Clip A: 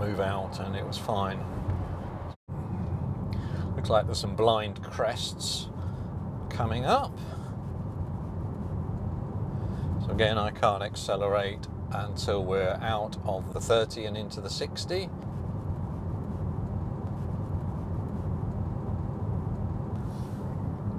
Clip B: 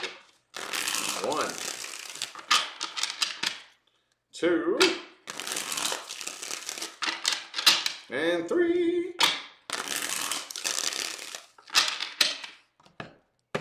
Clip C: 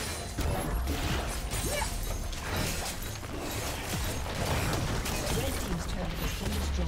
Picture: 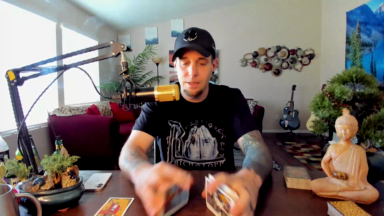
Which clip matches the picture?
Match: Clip B